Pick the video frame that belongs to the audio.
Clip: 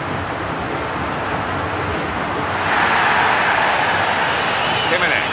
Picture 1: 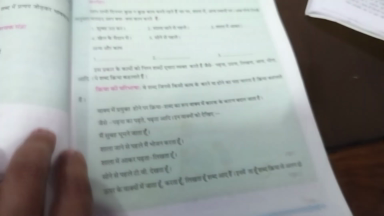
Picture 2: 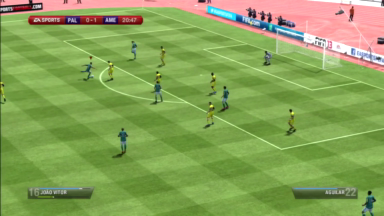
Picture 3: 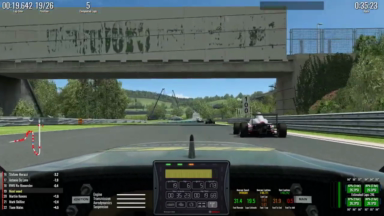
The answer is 2